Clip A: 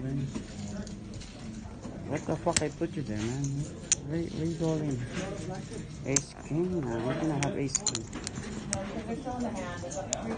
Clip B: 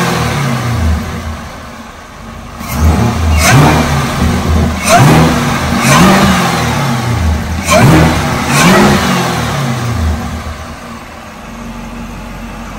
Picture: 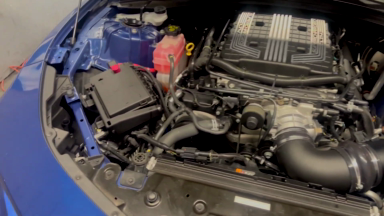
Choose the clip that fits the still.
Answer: B